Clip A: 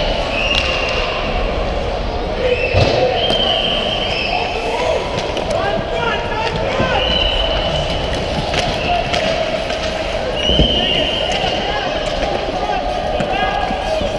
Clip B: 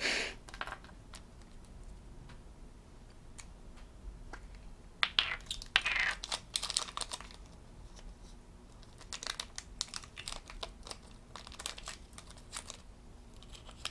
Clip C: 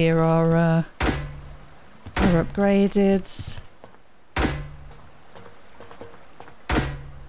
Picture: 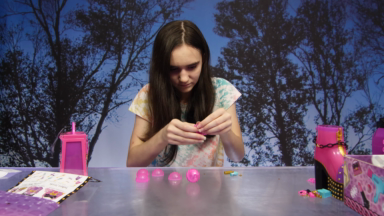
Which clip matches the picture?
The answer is B